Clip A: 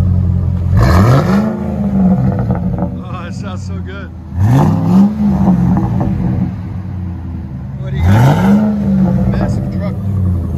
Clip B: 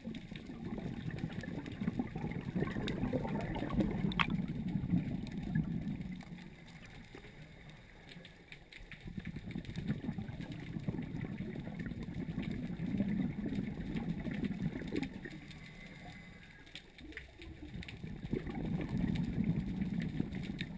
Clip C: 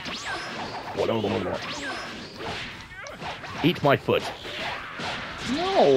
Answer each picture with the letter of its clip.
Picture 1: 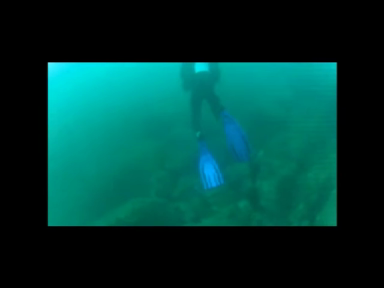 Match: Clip B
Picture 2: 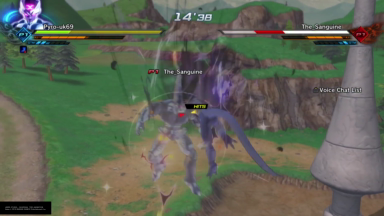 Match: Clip C